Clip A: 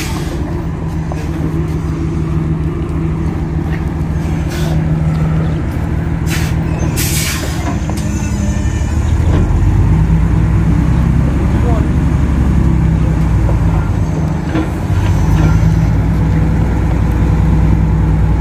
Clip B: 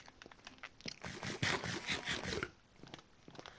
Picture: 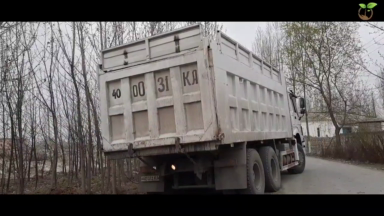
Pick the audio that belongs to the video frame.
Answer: A